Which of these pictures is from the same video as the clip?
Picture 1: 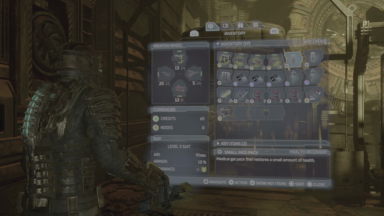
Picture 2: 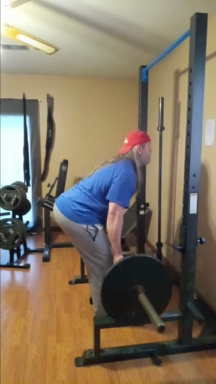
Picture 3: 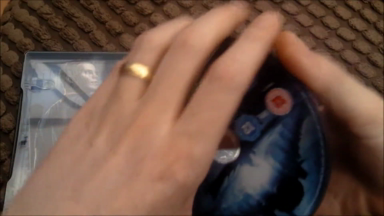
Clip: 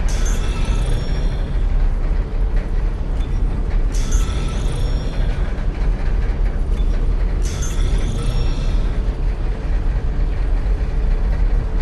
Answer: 1